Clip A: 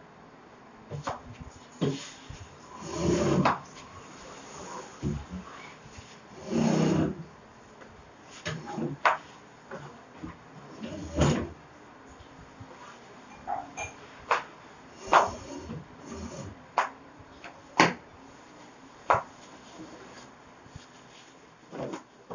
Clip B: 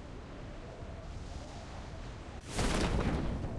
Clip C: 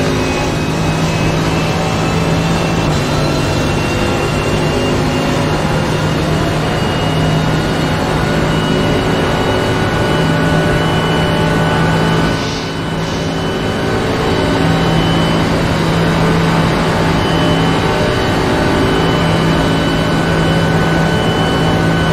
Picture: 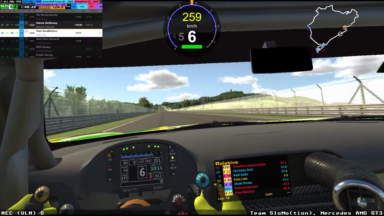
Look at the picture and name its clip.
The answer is C